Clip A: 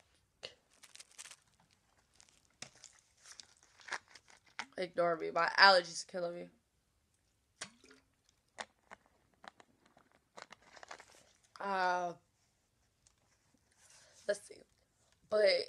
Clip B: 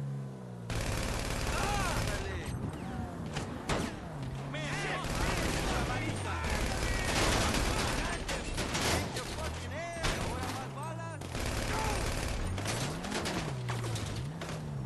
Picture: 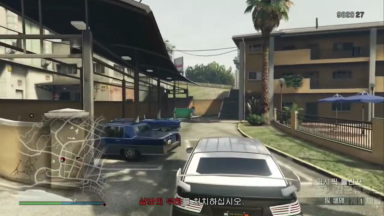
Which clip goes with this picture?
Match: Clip B